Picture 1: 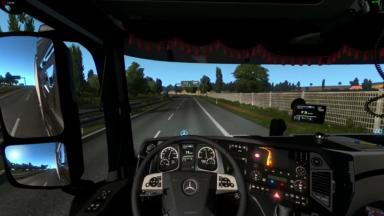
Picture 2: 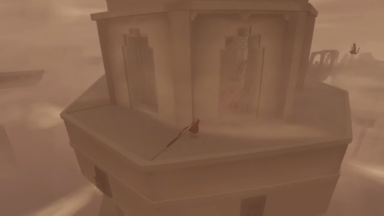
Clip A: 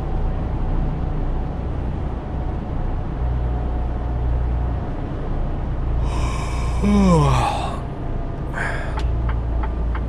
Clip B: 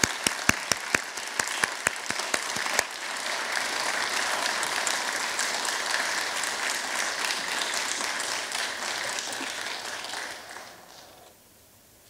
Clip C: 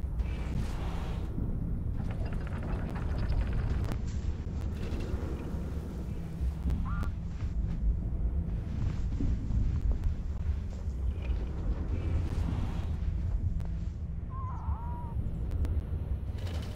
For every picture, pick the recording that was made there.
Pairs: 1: A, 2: C